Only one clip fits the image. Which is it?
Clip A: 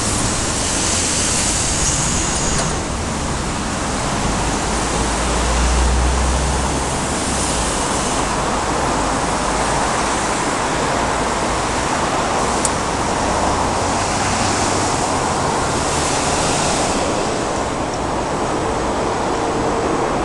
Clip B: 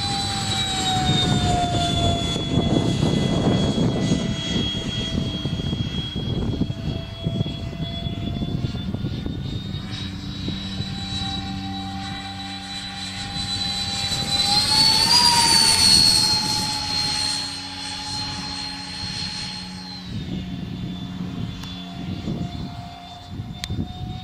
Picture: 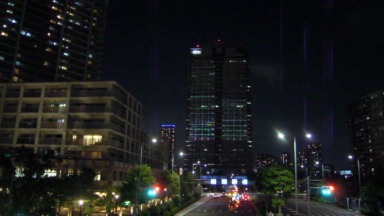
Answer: A